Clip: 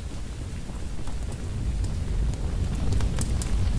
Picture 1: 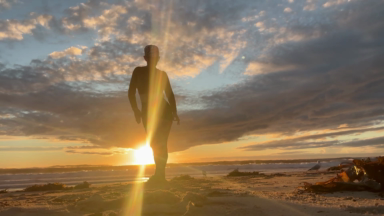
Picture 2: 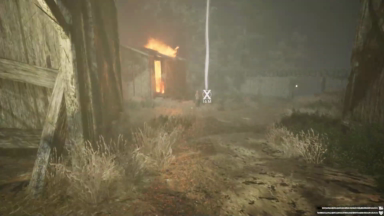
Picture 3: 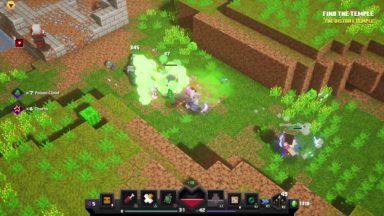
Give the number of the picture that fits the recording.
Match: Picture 2